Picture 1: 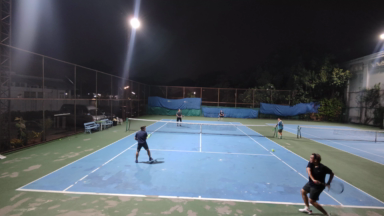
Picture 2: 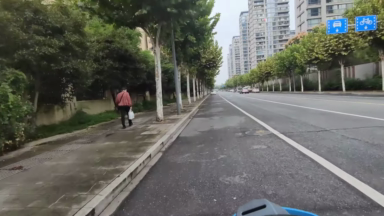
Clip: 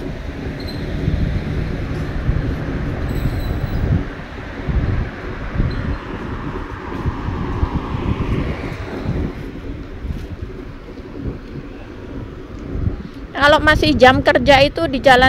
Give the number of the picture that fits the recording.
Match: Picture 2